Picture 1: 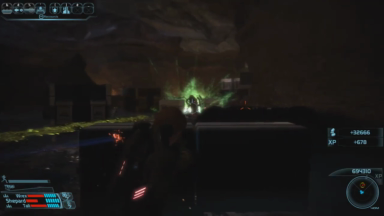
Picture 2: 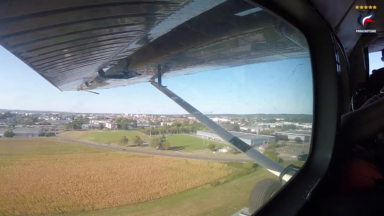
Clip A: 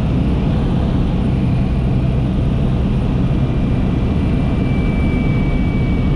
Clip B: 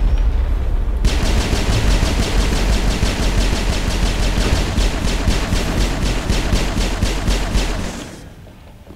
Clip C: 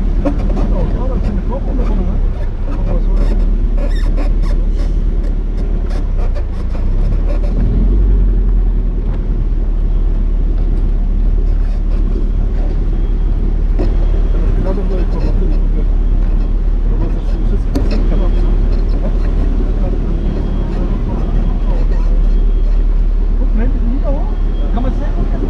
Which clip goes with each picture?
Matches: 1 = B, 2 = A